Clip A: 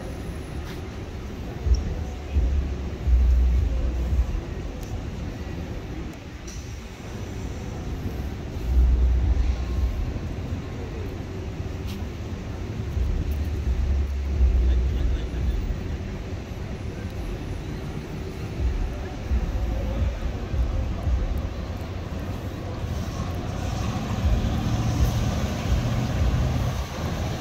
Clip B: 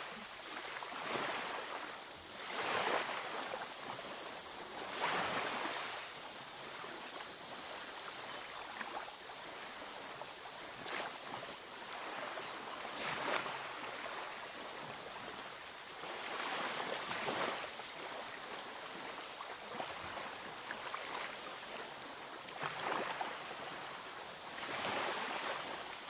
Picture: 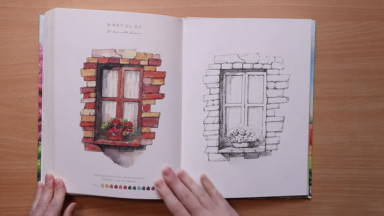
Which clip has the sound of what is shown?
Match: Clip B